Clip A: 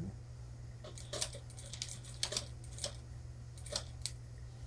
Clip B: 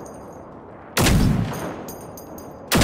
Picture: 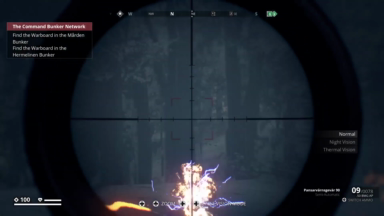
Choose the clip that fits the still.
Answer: B